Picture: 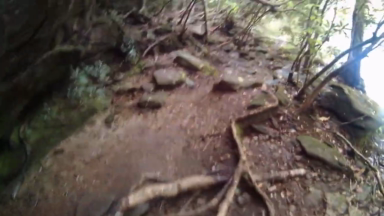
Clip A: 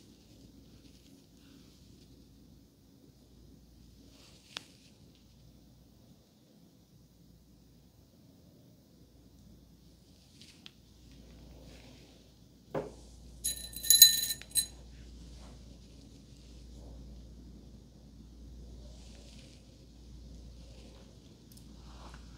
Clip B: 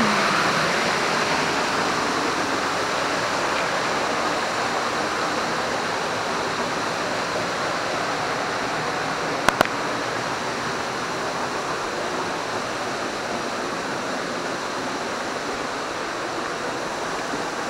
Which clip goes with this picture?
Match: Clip B